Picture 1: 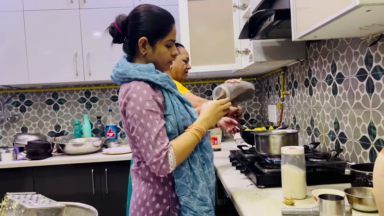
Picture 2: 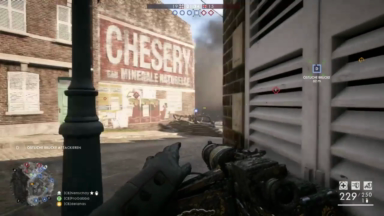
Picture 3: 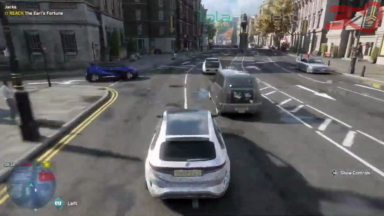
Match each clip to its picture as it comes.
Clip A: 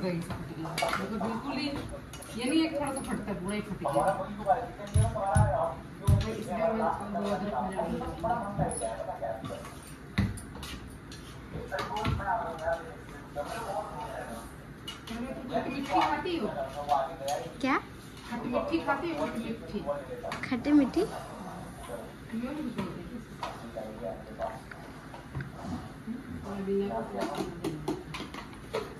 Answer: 1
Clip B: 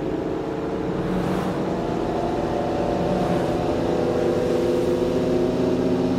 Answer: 3